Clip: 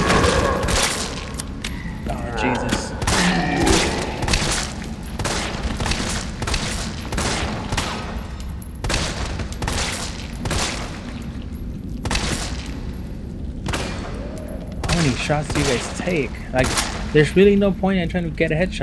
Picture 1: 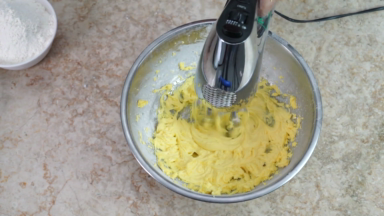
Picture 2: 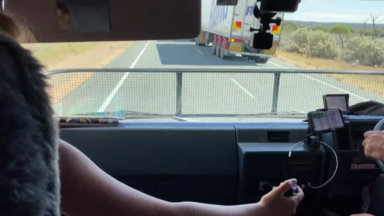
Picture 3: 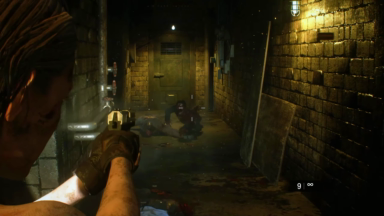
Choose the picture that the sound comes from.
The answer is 3